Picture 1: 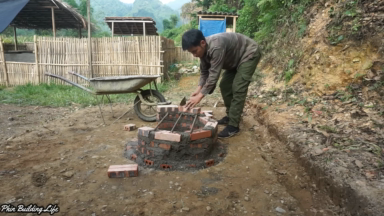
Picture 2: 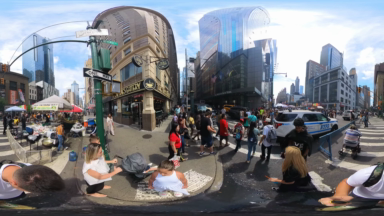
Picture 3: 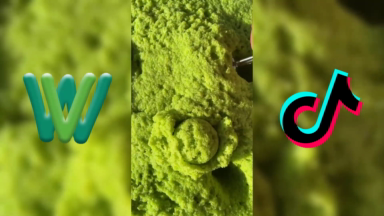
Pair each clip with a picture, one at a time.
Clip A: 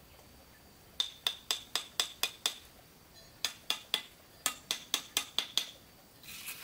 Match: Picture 1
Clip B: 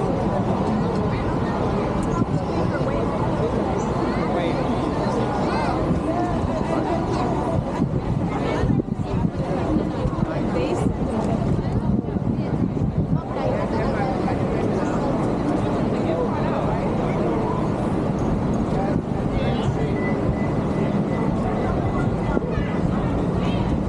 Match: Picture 2